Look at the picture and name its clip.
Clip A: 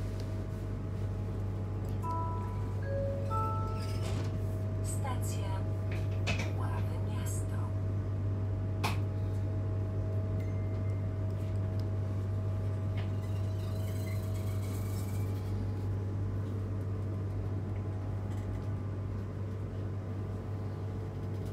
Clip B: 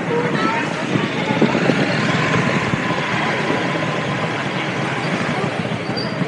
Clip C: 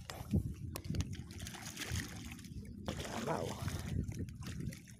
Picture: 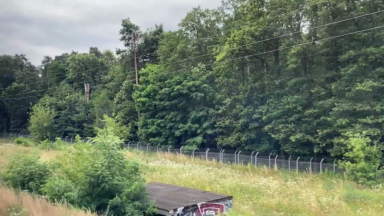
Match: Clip A